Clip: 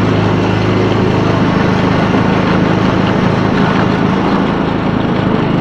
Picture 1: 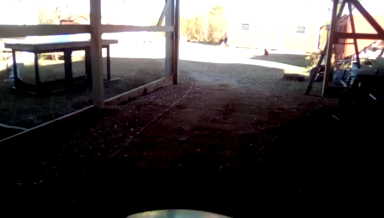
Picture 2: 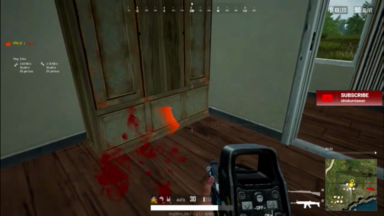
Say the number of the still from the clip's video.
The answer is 1